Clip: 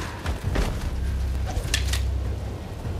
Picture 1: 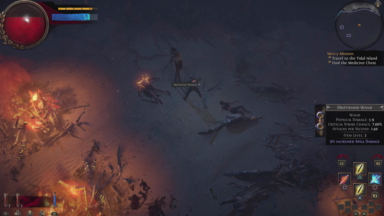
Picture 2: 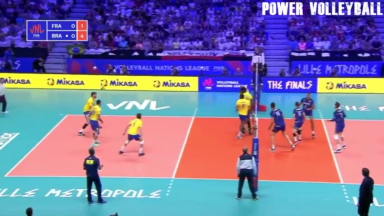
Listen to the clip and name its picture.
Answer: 1